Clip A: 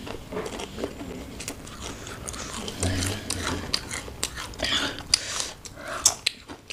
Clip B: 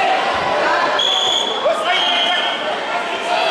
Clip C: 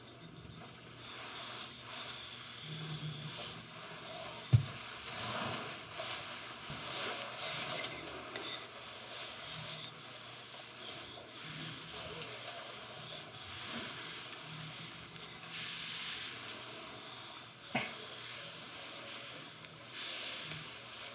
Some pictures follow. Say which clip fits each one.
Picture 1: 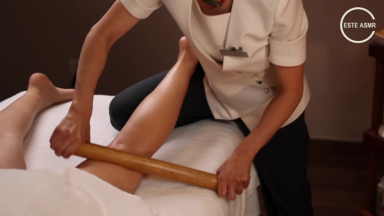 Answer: C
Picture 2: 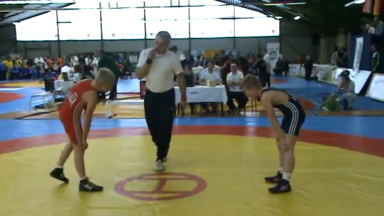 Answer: B